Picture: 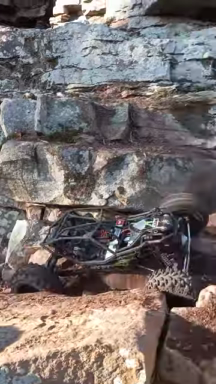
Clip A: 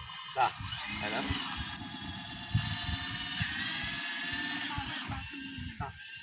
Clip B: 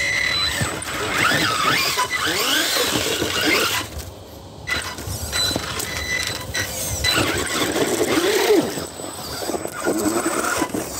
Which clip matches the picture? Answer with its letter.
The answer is B